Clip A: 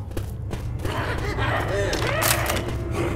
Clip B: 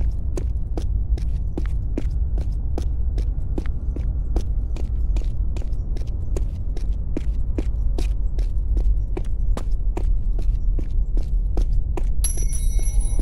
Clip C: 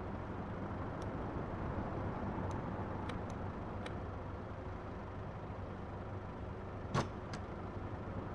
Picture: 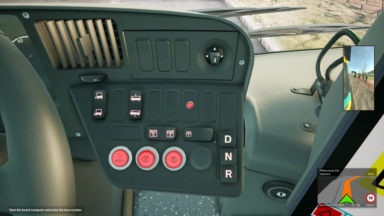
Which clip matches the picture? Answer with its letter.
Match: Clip C